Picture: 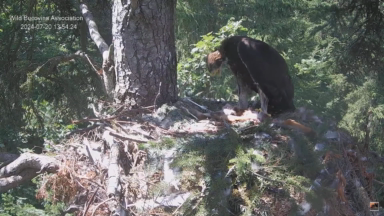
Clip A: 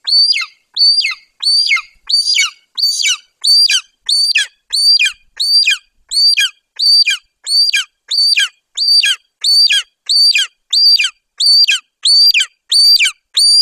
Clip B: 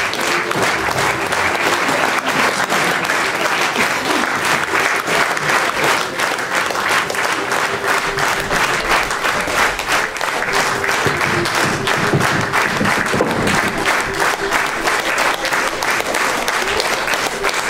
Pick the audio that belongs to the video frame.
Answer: A